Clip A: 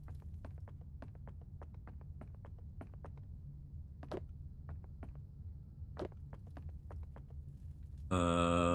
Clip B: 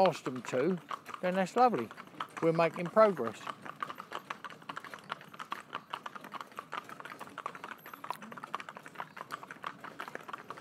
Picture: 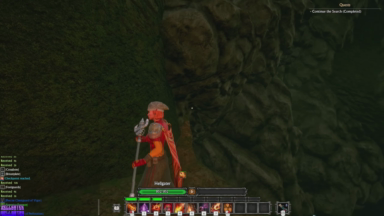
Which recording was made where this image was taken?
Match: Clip A